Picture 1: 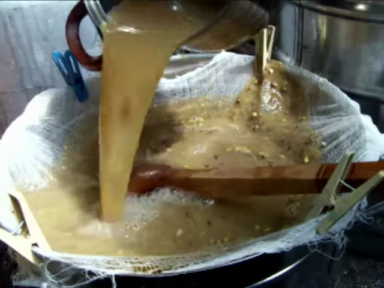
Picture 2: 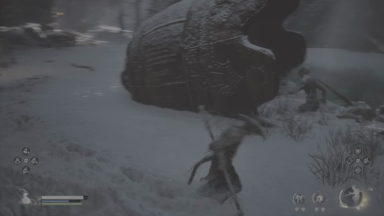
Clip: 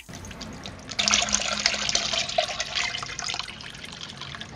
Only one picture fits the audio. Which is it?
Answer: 1